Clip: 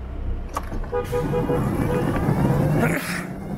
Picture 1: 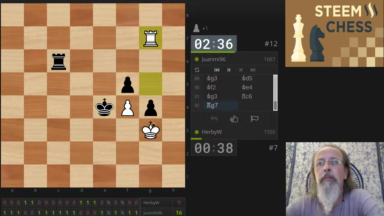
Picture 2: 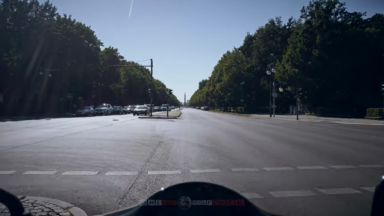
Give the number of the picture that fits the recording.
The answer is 2